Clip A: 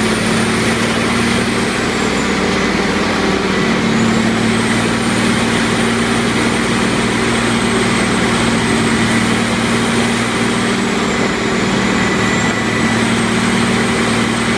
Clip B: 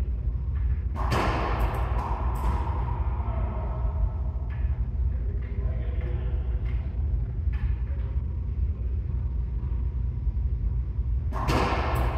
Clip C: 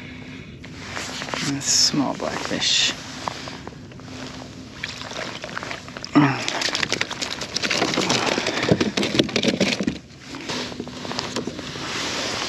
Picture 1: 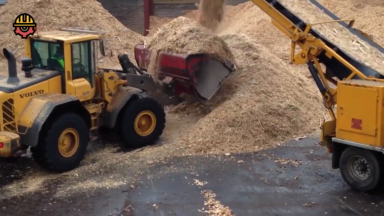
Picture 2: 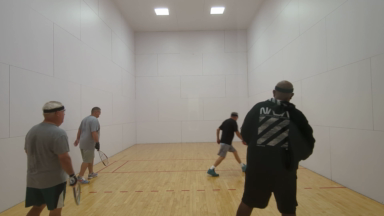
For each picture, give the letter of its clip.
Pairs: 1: A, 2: B